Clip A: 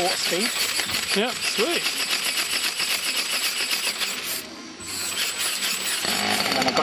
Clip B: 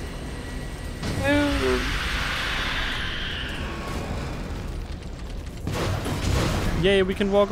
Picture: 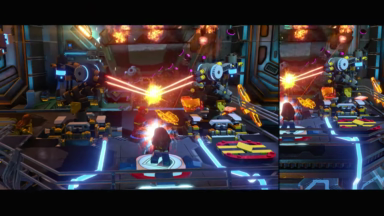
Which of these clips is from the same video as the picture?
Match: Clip B